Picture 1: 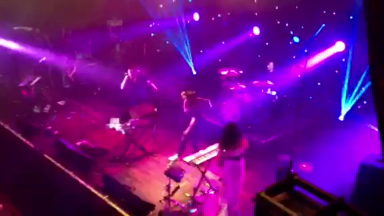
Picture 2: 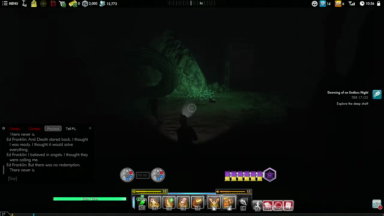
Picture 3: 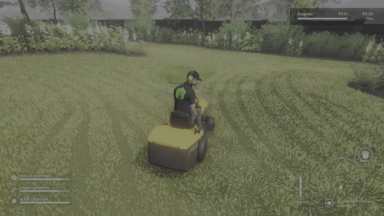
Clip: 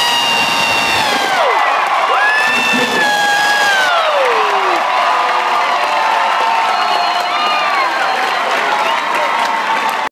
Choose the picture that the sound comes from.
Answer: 1